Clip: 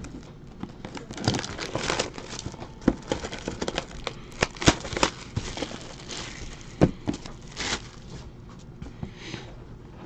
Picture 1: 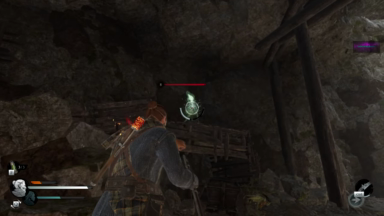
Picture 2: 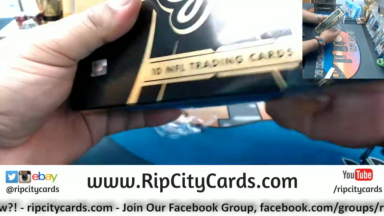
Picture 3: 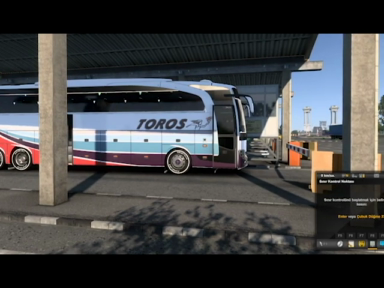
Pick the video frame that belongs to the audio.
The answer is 2